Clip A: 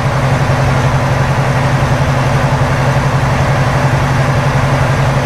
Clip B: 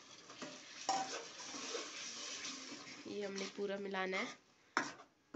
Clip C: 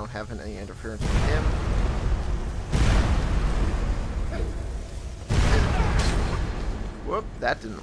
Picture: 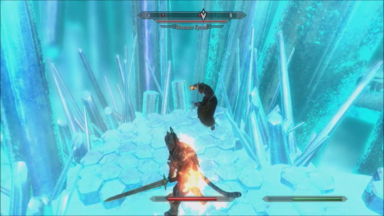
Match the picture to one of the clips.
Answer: C